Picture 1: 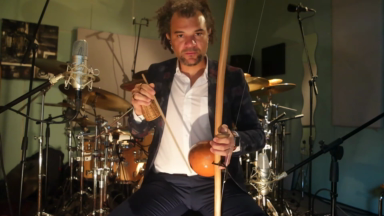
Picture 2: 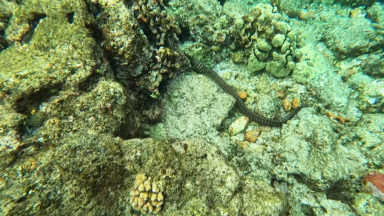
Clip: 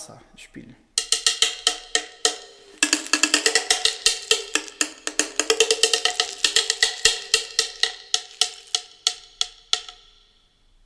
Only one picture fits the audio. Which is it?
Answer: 1